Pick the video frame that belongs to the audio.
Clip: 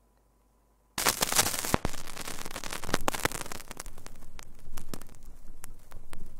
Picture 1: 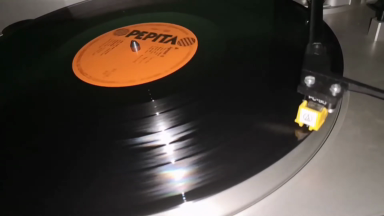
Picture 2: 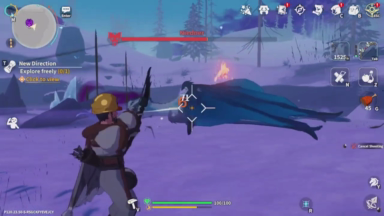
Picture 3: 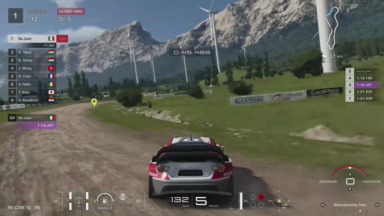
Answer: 1